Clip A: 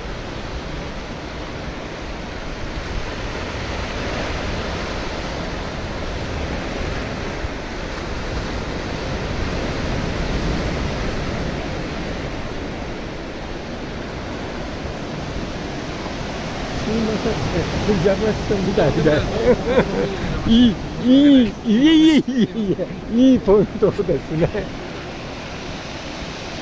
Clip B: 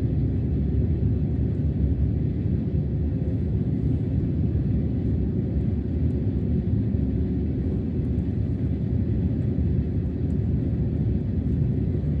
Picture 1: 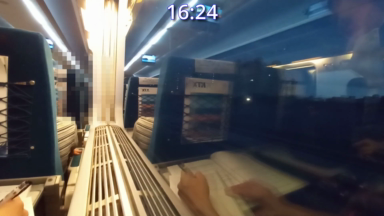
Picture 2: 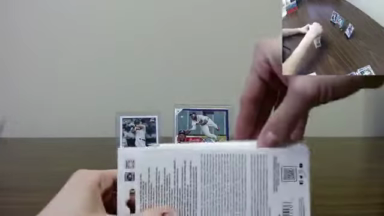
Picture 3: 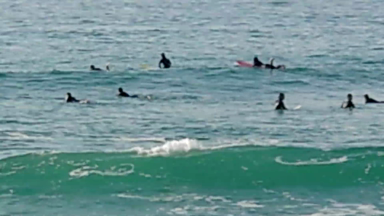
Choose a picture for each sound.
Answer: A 3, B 1